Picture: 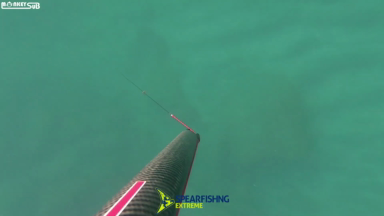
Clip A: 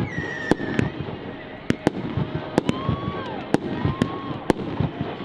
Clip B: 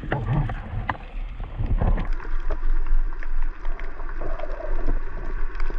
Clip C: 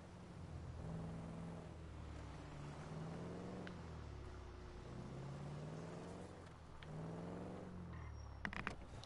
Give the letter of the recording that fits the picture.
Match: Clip B